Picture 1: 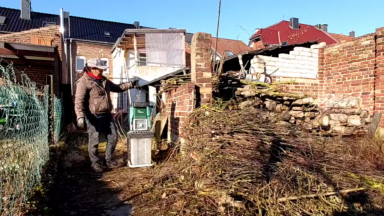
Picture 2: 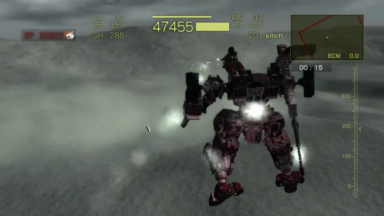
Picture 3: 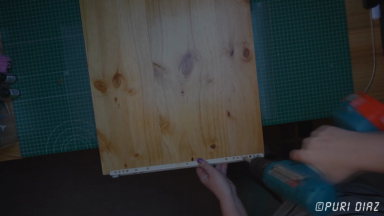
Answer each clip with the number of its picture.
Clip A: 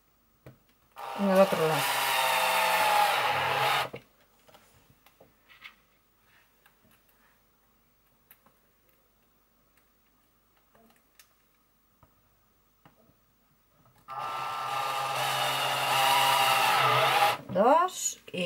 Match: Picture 3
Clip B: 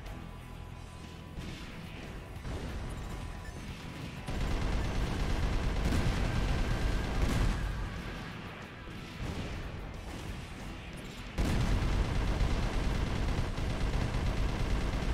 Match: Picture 2